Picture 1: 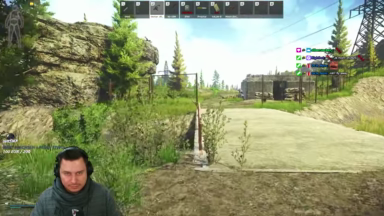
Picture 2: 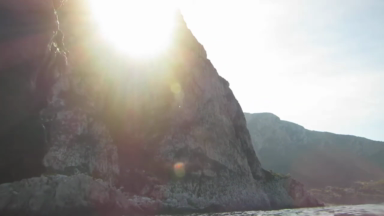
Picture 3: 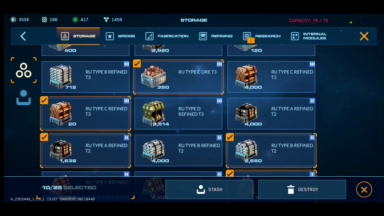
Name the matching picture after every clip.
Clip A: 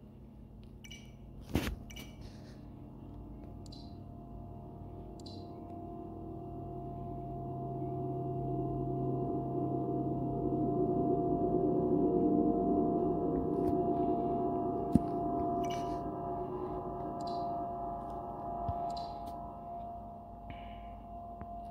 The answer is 3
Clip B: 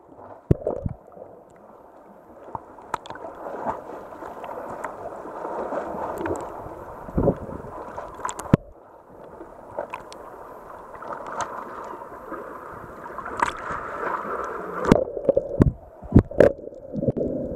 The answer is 2